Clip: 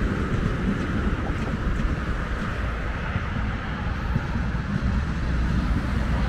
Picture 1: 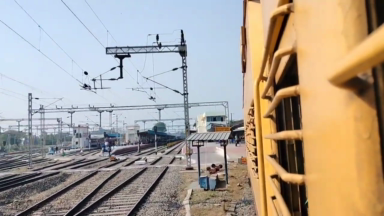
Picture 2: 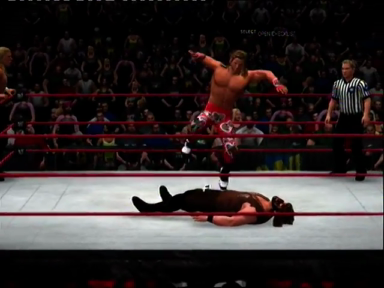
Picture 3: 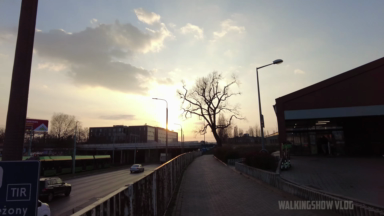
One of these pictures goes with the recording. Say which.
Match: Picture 3